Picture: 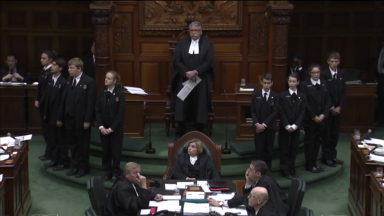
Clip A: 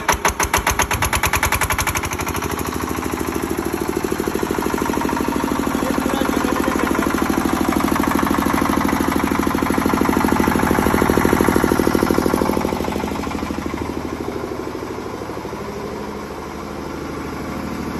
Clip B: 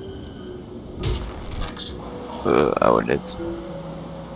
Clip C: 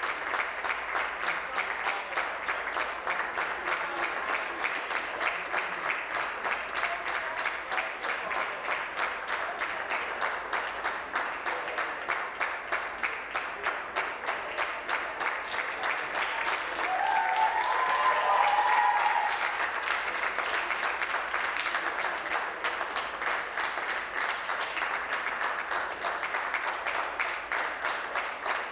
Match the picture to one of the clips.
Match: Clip C